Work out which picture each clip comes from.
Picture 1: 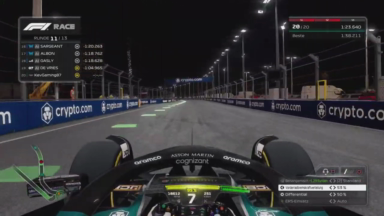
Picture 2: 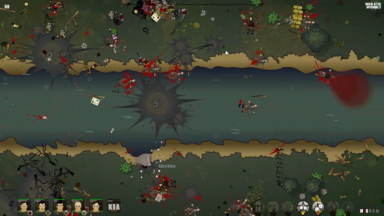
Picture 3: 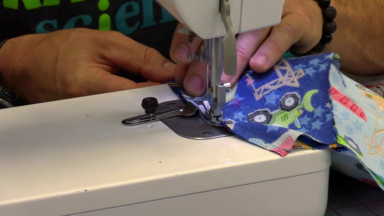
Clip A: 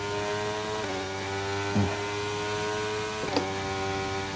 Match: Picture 1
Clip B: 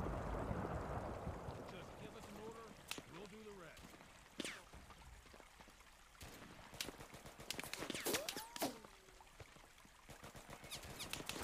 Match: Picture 2